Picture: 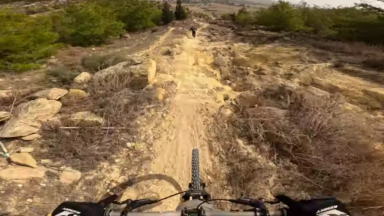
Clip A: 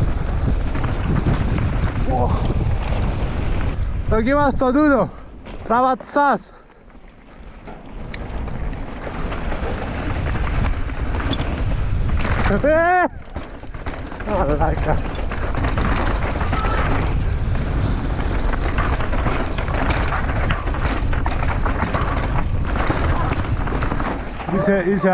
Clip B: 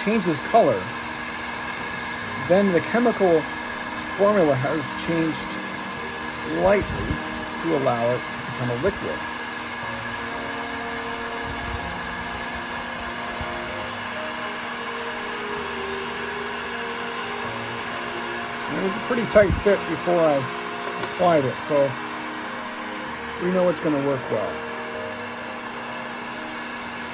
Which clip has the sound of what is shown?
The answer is A